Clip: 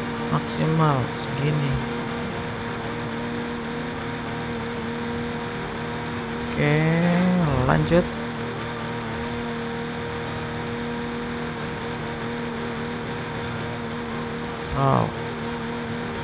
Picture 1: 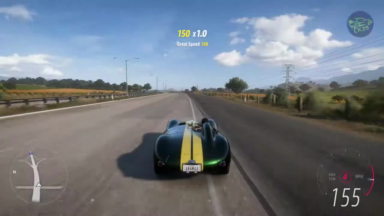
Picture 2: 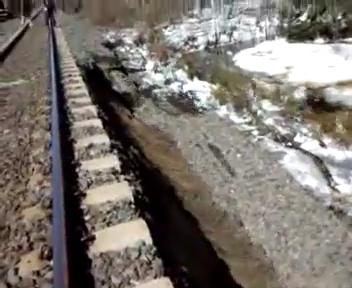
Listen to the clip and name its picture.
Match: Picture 1